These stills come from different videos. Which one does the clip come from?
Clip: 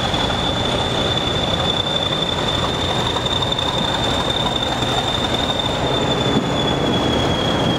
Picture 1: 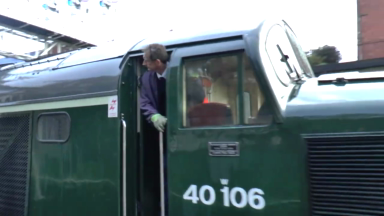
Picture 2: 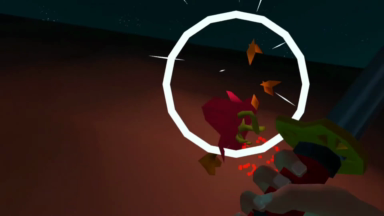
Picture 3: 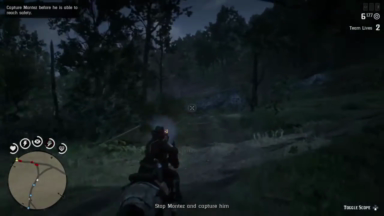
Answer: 1